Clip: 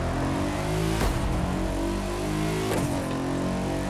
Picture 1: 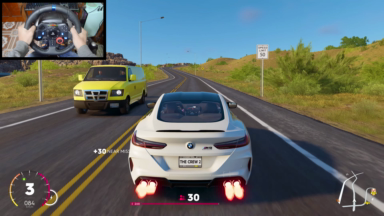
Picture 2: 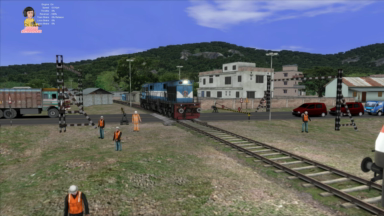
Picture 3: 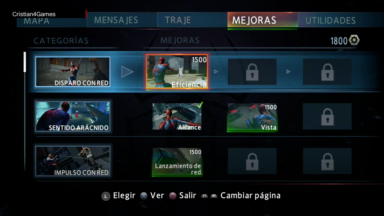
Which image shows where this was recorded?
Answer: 1